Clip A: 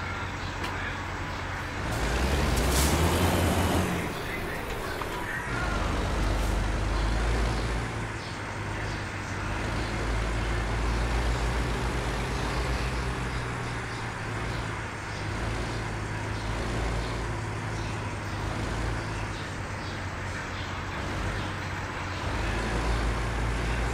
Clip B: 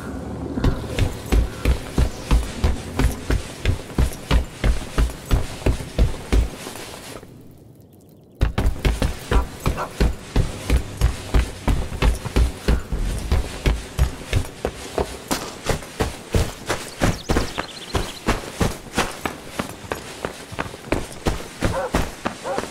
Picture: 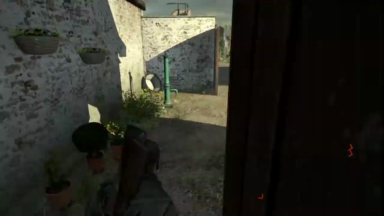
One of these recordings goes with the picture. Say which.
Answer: B